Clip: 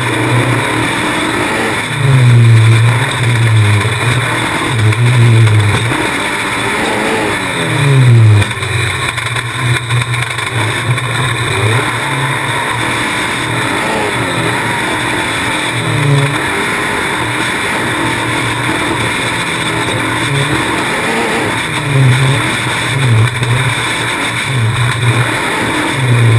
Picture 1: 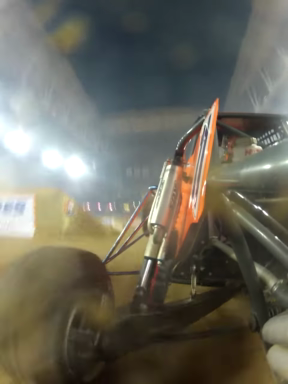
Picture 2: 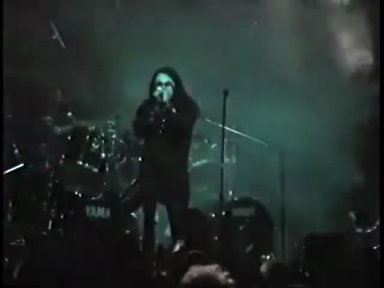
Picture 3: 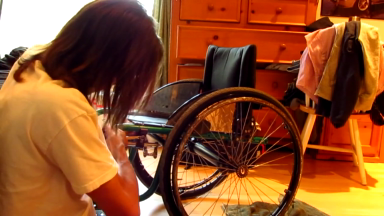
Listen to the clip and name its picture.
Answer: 1